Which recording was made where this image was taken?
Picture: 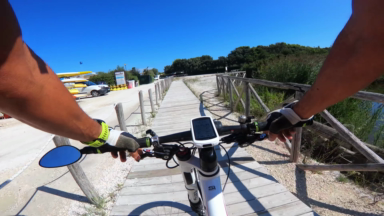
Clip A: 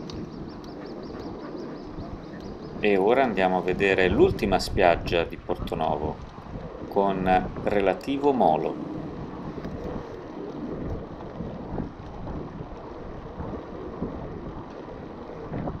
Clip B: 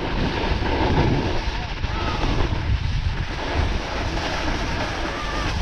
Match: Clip A